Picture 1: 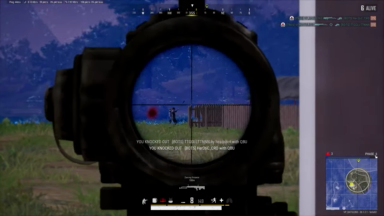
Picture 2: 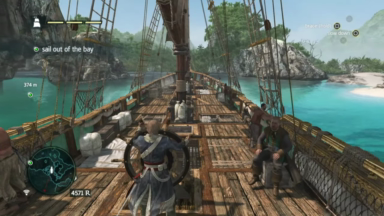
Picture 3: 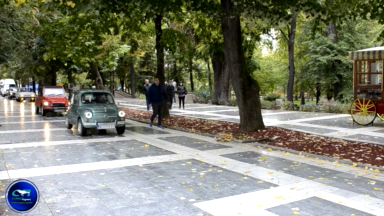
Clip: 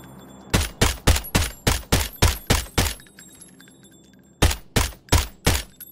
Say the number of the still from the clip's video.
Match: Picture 1